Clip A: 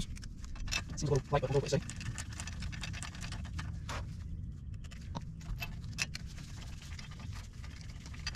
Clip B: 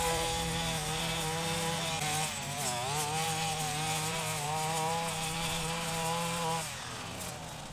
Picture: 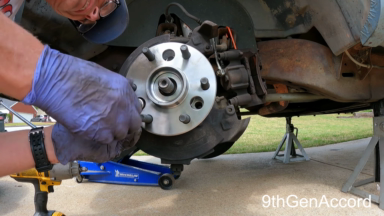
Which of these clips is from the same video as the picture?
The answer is A